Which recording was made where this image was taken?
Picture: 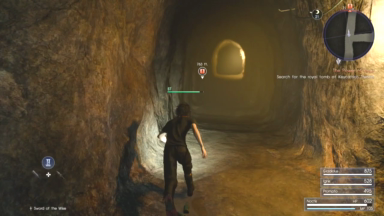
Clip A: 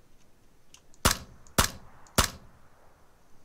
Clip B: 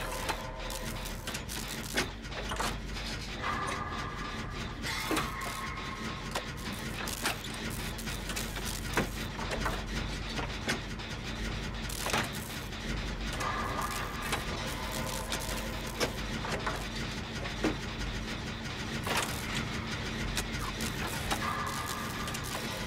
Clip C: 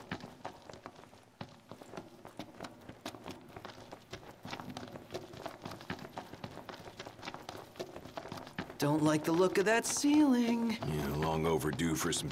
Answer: C